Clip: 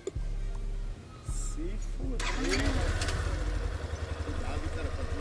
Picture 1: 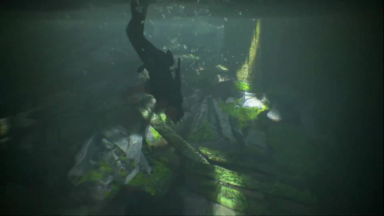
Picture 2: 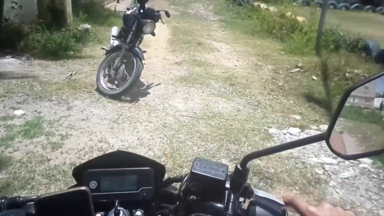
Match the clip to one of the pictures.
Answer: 2